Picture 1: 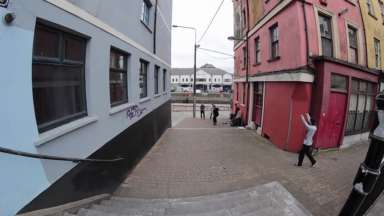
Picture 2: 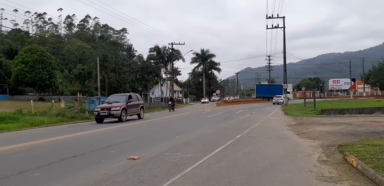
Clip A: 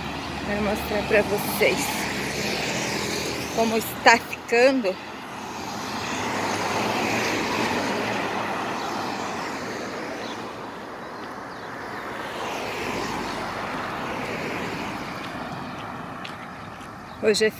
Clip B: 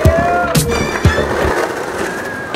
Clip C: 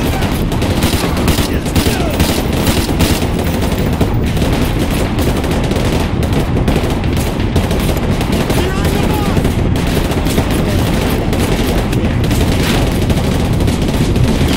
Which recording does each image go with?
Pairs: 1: B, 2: A